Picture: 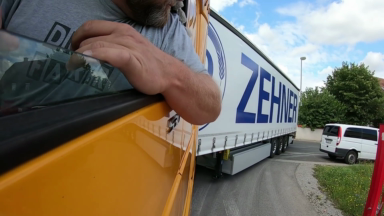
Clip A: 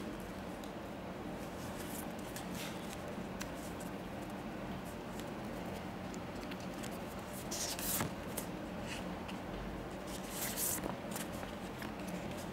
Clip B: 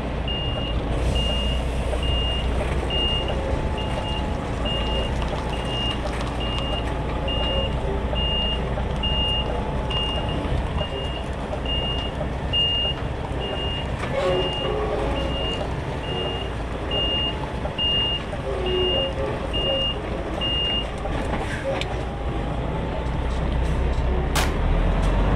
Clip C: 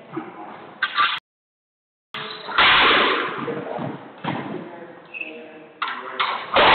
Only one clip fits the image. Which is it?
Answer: B